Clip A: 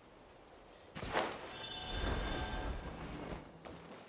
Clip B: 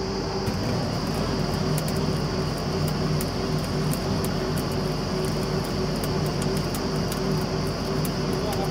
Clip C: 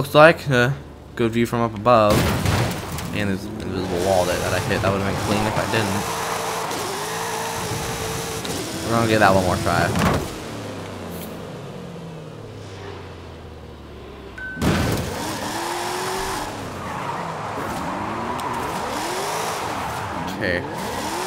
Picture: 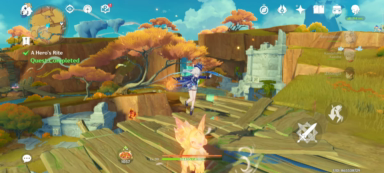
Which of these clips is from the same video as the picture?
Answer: A